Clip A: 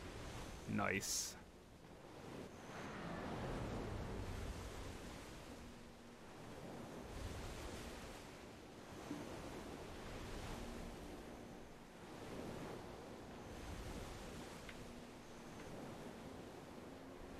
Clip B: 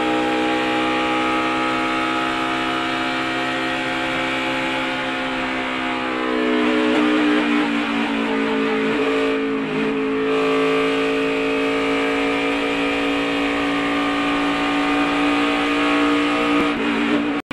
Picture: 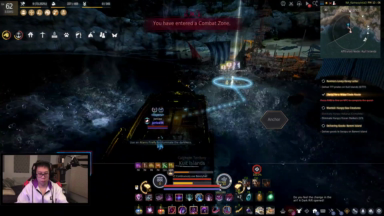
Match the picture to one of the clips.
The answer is A